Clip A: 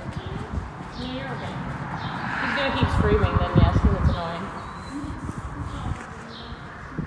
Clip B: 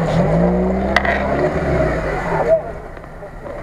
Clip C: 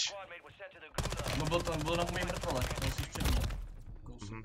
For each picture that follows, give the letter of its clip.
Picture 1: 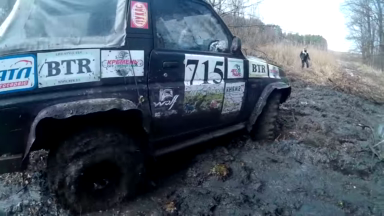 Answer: B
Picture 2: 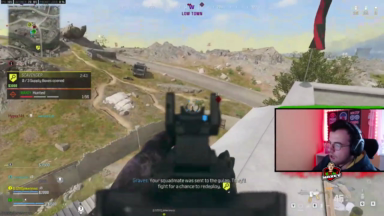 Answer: C